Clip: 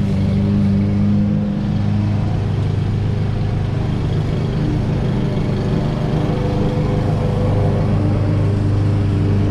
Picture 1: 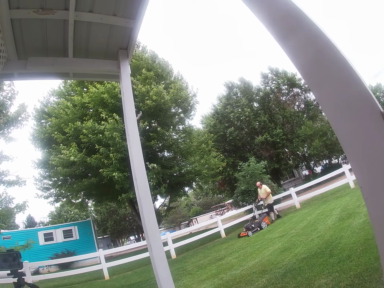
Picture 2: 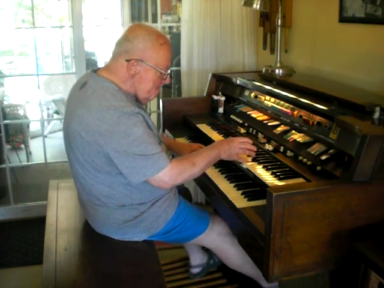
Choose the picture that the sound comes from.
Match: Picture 1